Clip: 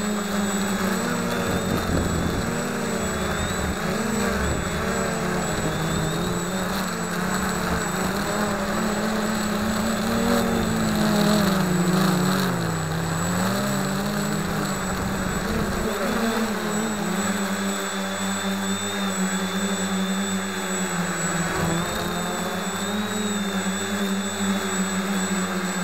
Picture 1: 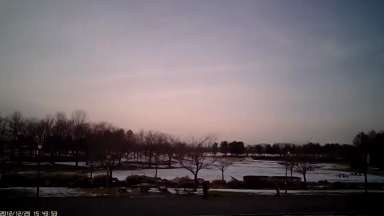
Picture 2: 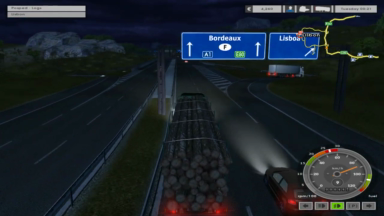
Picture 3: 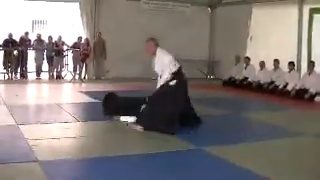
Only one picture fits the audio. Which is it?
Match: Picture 1